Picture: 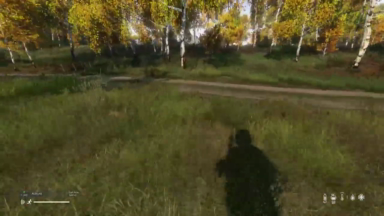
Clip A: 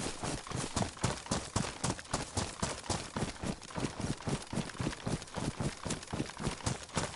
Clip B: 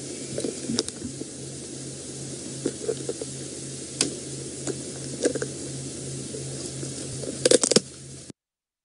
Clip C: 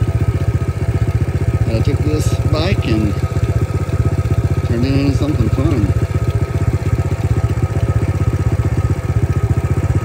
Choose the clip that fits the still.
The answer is A